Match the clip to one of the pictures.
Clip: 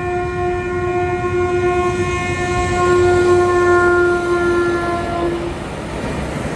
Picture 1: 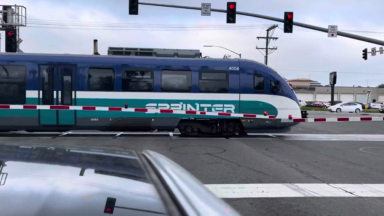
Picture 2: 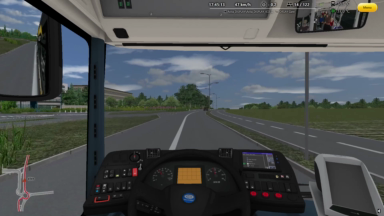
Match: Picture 1